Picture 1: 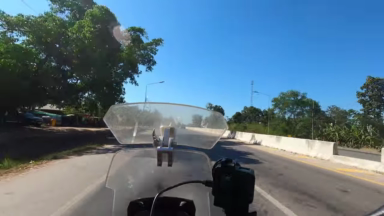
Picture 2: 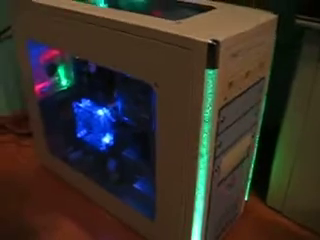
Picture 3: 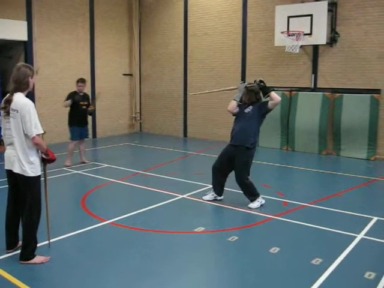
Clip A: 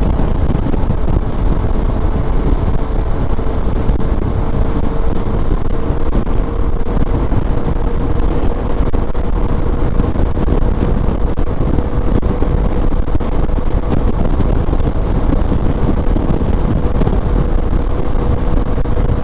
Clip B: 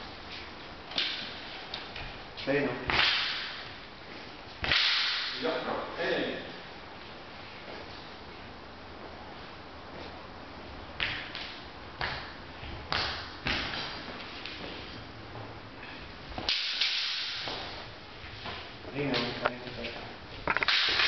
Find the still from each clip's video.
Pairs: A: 1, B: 3